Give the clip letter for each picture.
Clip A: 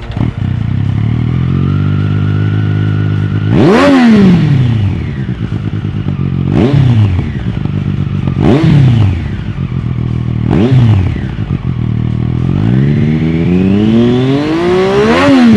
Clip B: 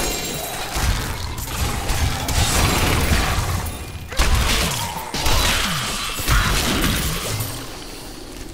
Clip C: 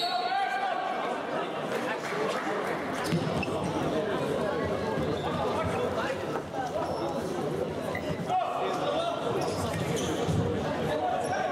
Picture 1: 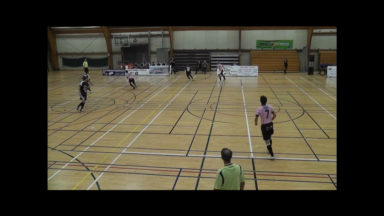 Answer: C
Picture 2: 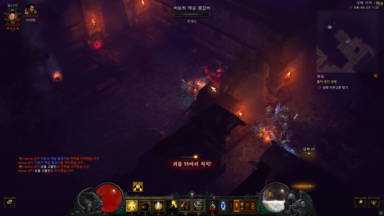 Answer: B